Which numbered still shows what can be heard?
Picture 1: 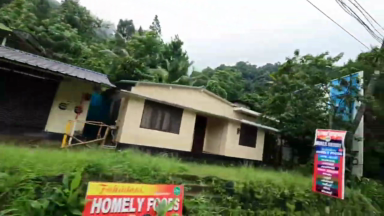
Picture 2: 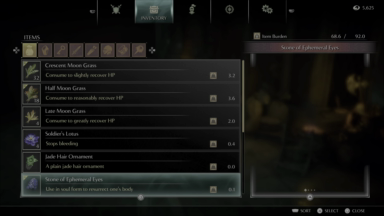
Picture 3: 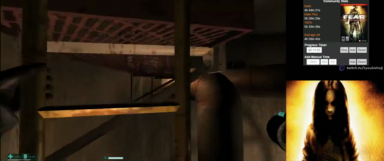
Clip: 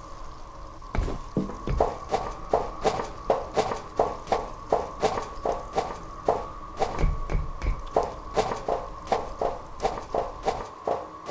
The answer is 3